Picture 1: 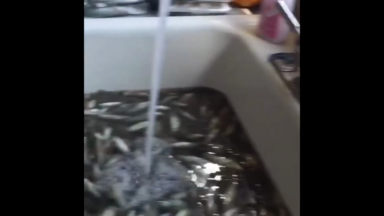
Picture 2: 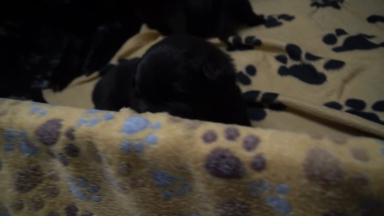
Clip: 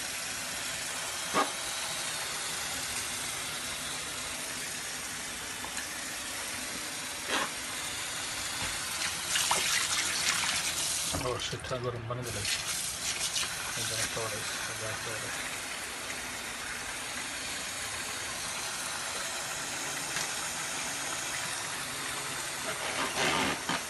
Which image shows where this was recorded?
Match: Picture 1